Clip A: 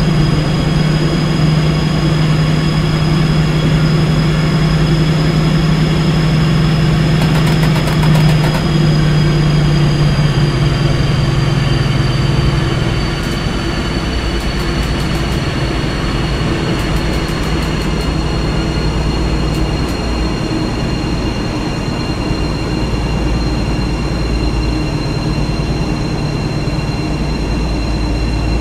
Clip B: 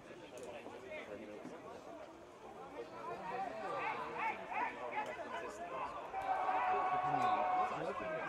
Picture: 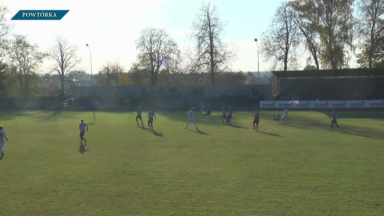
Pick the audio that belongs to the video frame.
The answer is B